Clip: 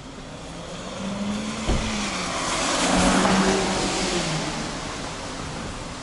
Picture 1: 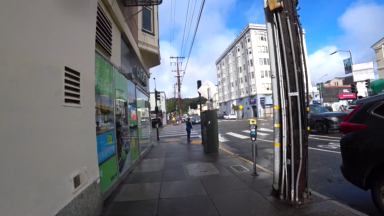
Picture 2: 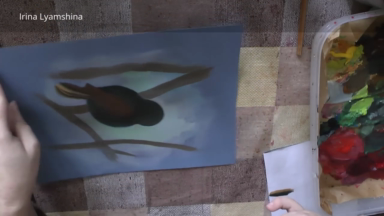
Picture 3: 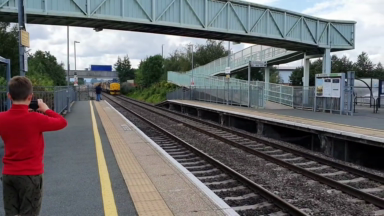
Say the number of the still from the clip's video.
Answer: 1